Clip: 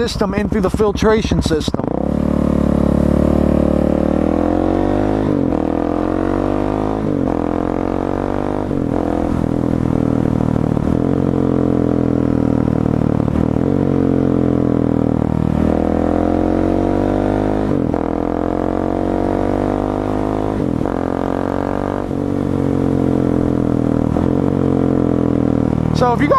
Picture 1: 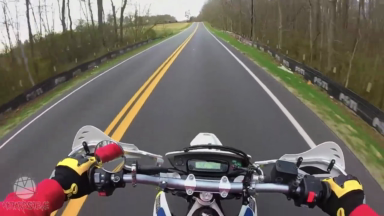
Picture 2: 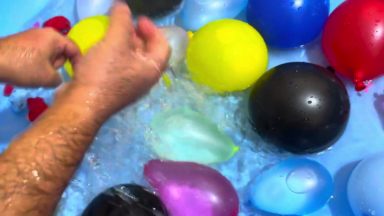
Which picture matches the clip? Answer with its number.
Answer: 1